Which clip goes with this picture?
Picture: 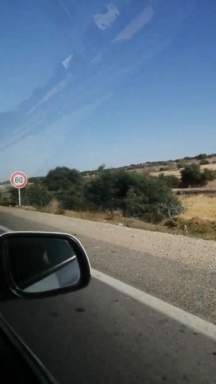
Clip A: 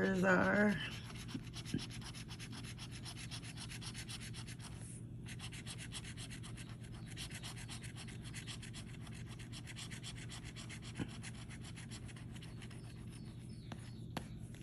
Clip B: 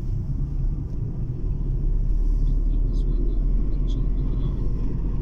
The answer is B